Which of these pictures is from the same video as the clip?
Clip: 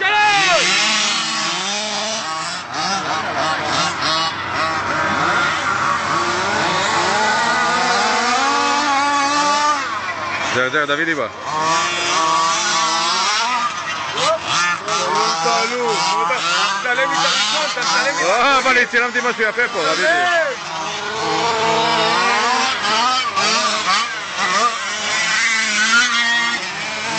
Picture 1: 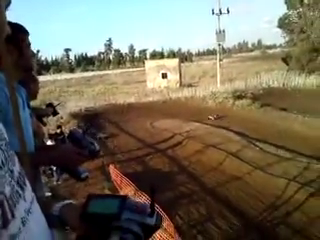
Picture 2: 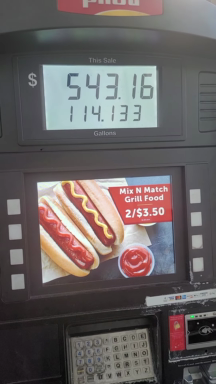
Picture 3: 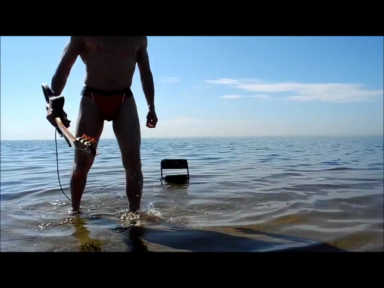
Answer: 1